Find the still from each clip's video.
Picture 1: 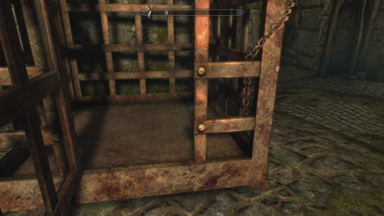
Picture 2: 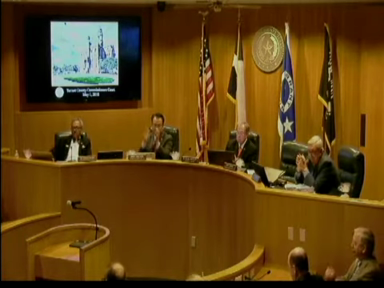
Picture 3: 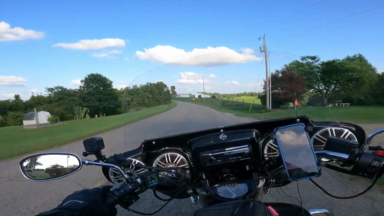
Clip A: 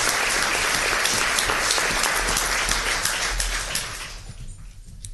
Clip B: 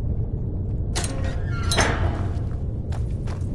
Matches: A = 2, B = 1